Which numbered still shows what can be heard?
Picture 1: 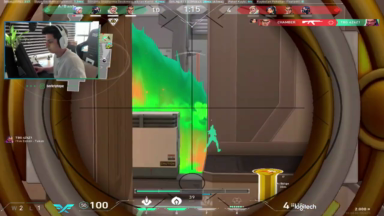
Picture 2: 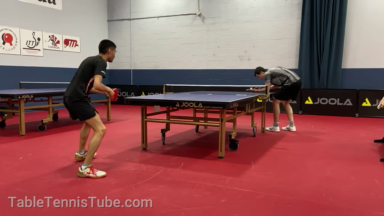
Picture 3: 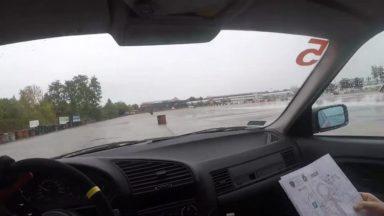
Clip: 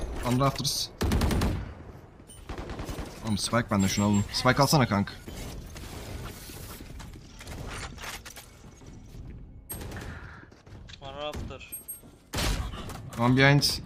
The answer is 1